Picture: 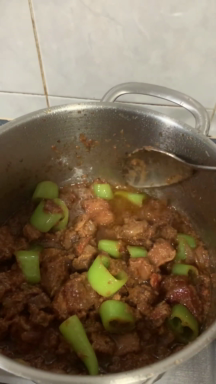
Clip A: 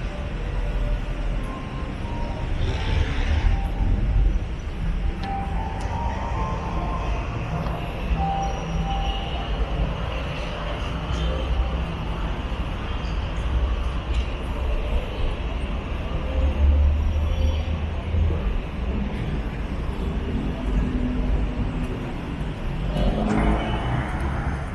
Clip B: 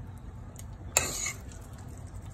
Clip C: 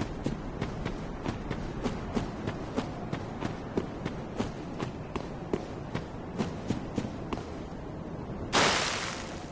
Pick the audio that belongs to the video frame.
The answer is B